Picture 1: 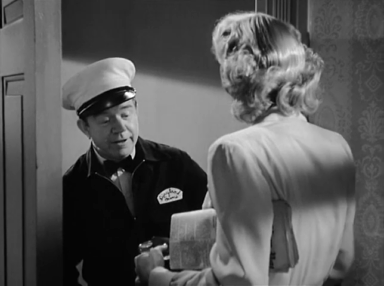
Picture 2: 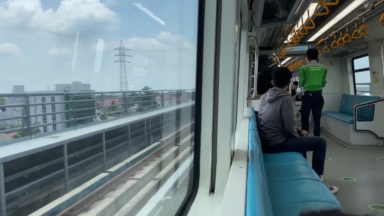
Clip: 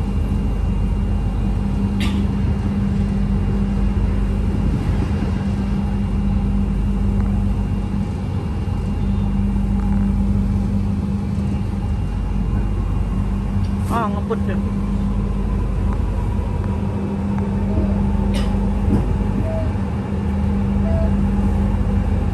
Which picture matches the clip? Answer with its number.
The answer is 2